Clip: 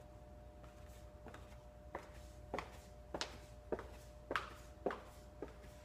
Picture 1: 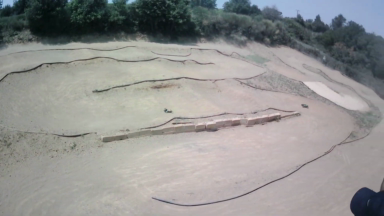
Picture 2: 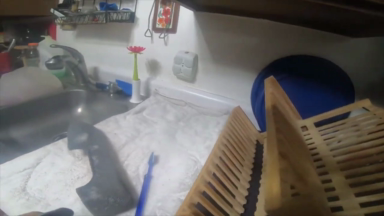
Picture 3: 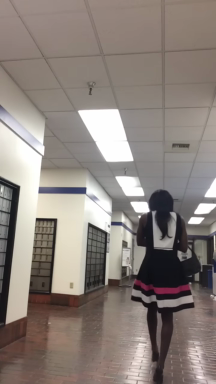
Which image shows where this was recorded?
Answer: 3